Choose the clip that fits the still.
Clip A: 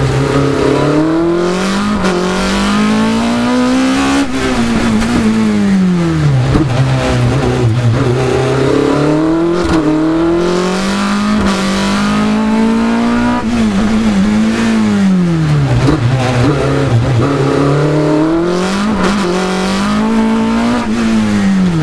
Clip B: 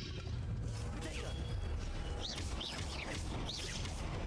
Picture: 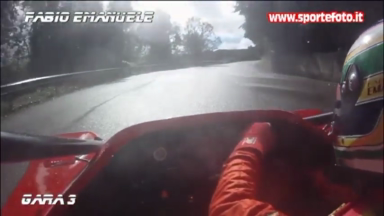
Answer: A